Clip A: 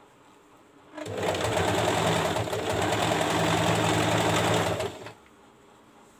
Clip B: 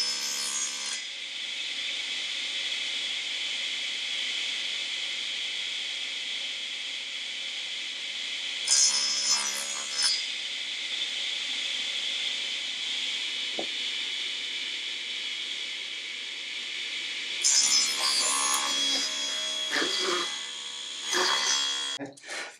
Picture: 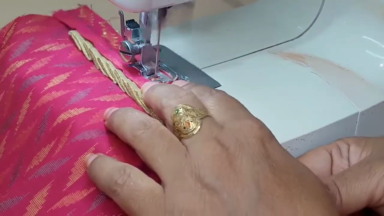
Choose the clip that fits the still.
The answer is A